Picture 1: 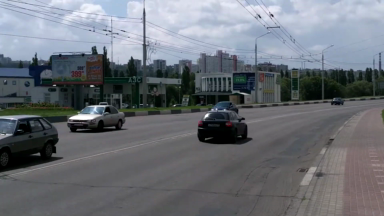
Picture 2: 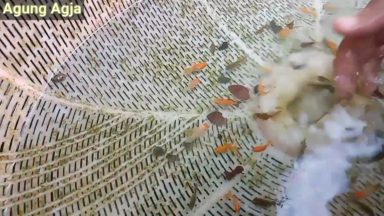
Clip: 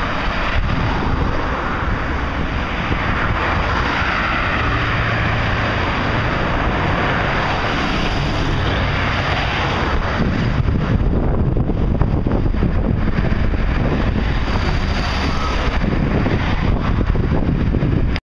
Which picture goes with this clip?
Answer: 1